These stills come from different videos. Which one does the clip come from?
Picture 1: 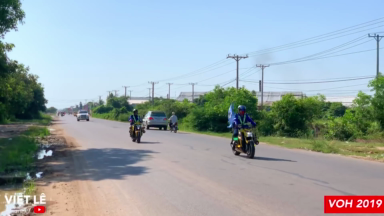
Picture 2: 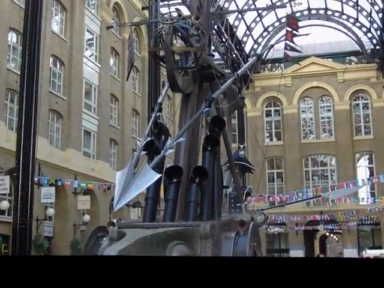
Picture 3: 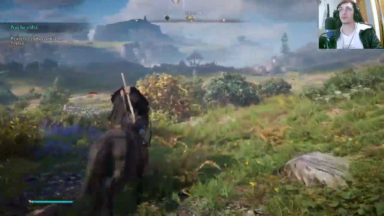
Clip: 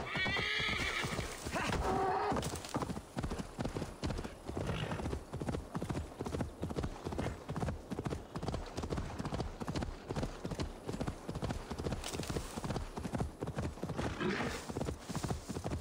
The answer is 3